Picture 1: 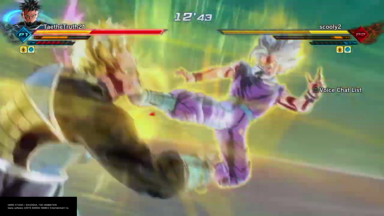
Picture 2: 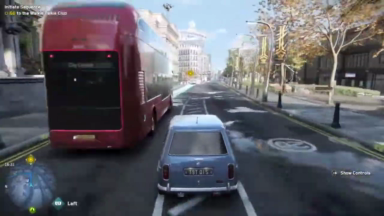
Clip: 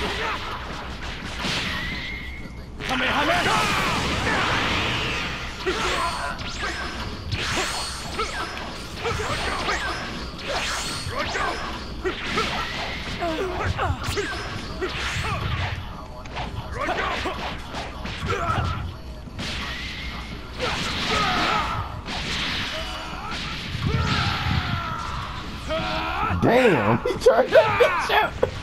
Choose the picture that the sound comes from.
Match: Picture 1